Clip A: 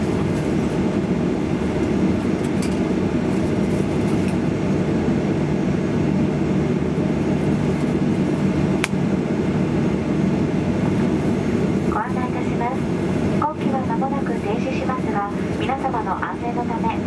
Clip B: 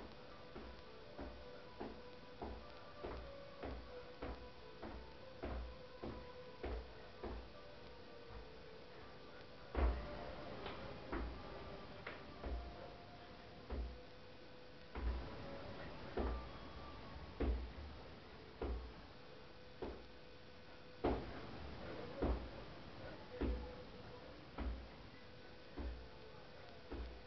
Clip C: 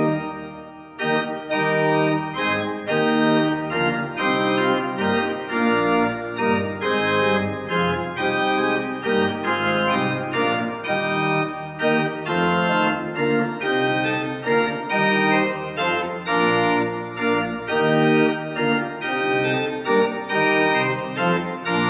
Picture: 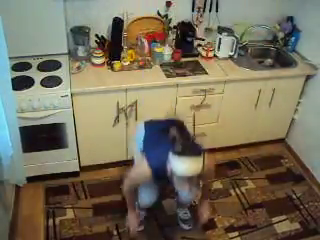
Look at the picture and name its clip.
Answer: B